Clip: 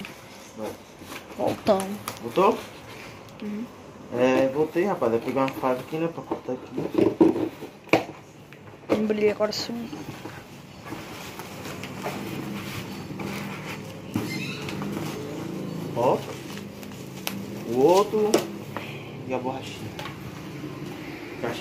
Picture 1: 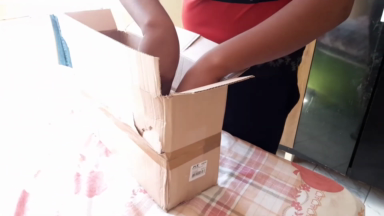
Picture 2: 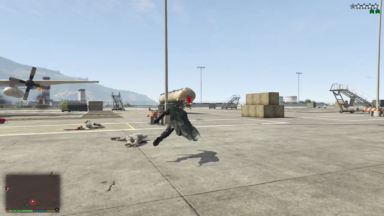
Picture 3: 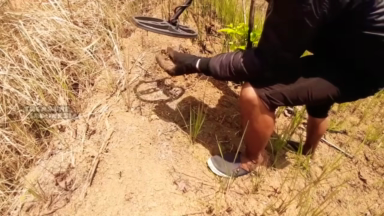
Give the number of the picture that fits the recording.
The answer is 1